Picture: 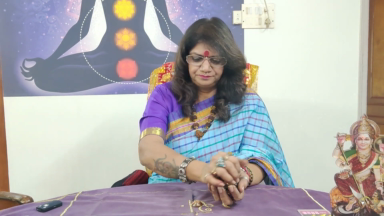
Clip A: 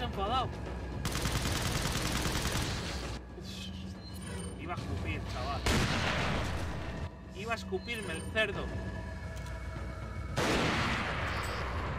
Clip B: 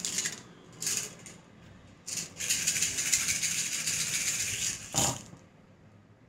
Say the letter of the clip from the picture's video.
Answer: B